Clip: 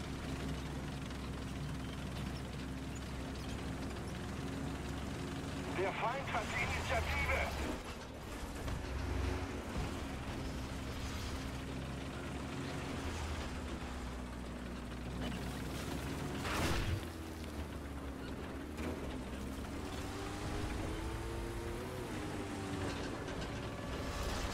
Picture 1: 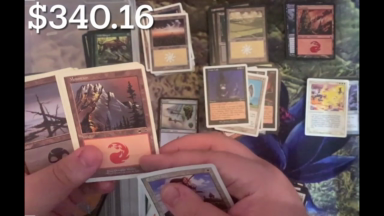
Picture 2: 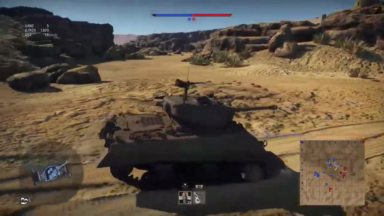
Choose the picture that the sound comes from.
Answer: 2